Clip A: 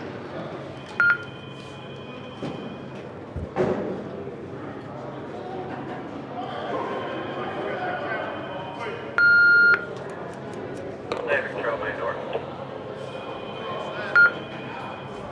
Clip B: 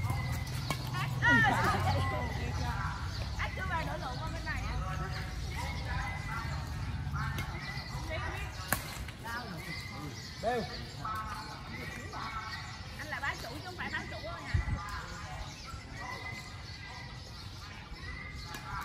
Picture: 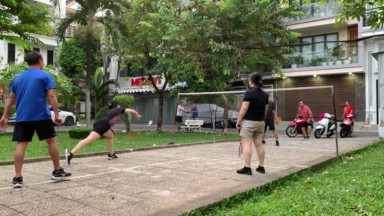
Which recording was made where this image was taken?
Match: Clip B